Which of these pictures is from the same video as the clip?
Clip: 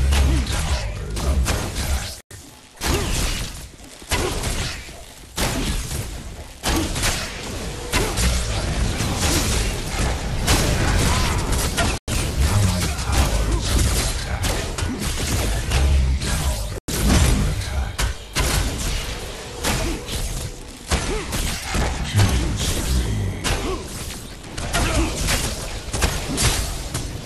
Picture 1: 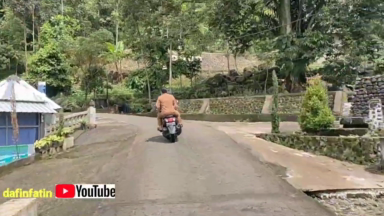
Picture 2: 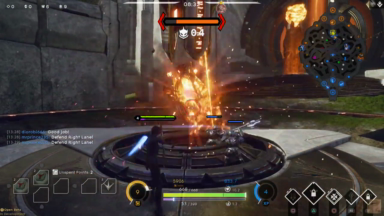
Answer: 2